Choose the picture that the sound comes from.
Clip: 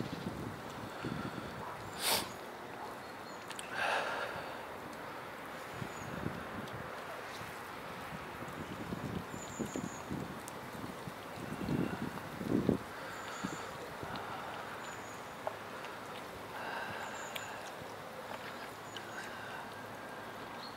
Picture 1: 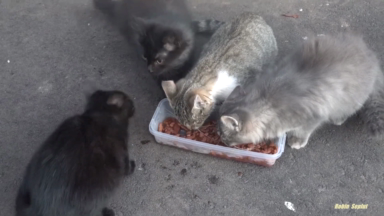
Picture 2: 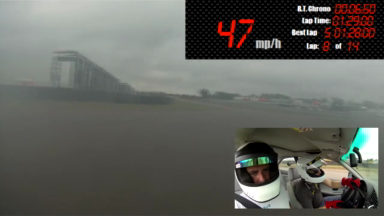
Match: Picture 1